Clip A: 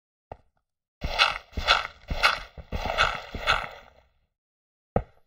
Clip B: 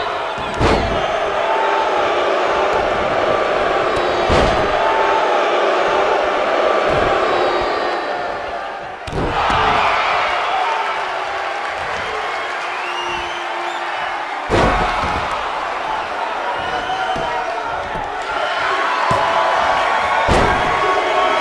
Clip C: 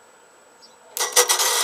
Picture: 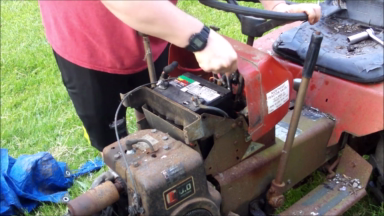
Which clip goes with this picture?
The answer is C